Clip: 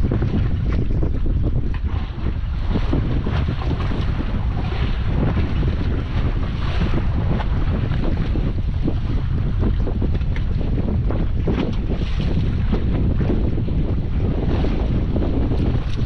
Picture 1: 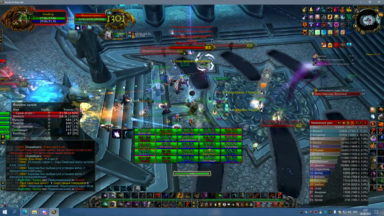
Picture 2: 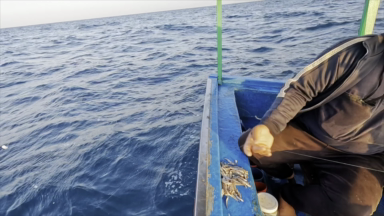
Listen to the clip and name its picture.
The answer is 2